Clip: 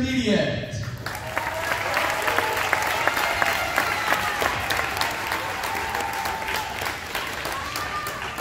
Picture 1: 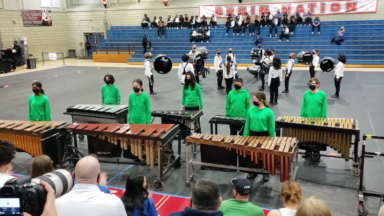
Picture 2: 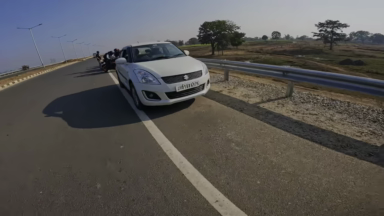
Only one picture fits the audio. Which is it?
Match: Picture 1